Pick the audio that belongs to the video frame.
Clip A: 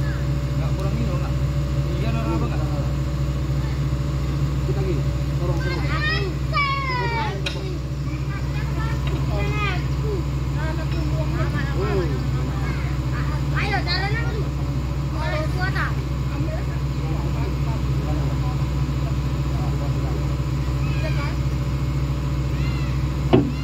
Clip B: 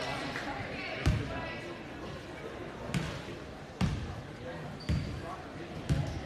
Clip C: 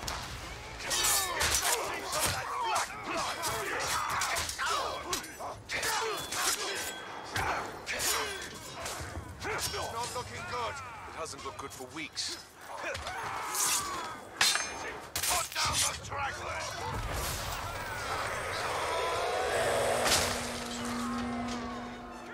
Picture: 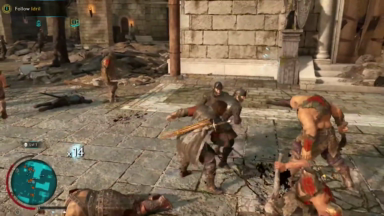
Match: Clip C